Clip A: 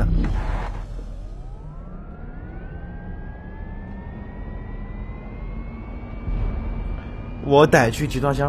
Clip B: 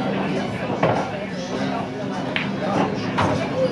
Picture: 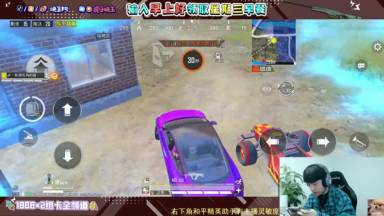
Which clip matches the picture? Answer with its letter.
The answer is A